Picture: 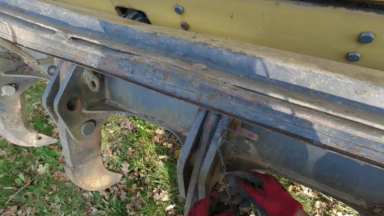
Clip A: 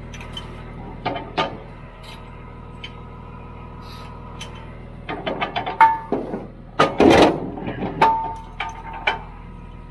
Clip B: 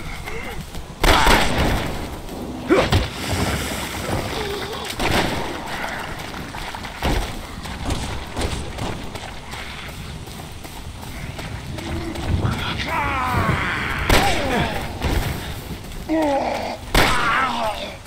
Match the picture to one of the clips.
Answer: A